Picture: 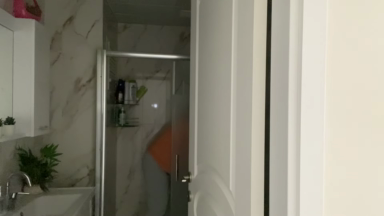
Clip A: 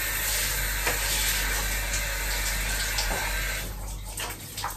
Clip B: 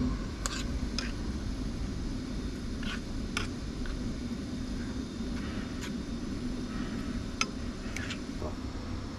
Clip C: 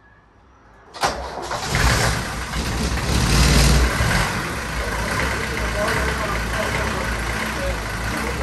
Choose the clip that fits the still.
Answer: A